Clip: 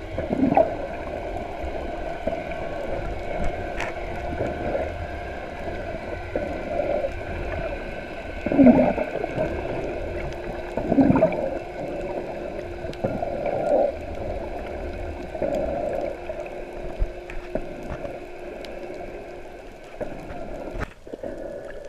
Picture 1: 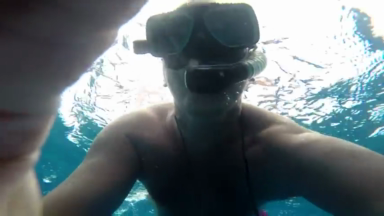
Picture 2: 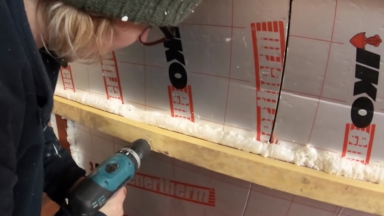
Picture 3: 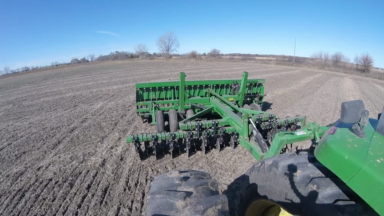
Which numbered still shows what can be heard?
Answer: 1